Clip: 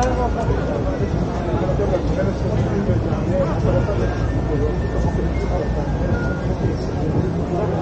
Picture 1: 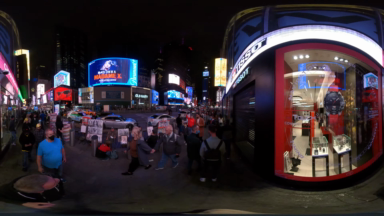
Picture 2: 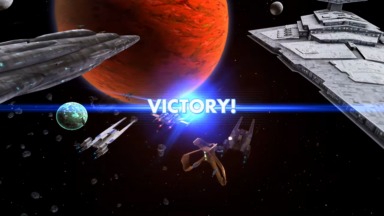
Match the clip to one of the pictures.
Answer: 1